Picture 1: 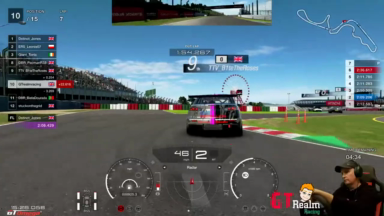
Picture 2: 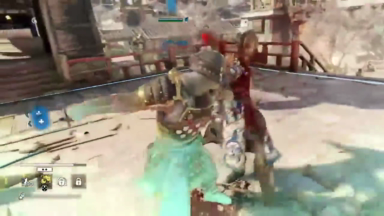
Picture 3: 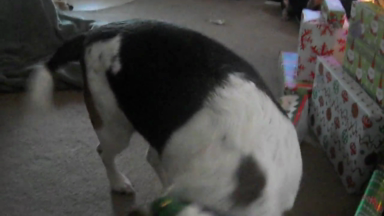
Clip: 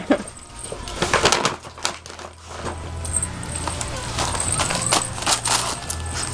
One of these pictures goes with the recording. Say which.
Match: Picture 3